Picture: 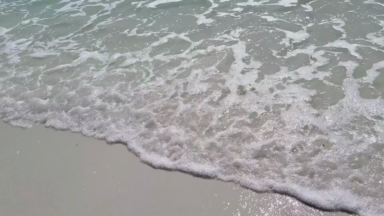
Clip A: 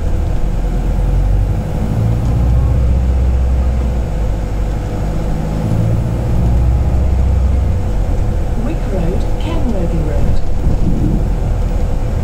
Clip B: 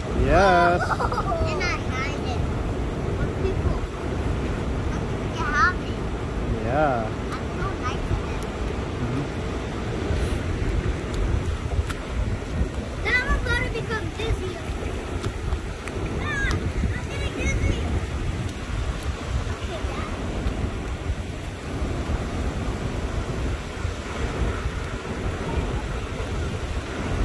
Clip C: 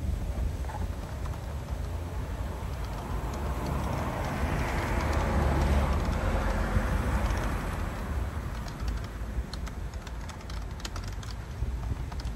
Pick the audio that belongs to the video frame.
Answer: B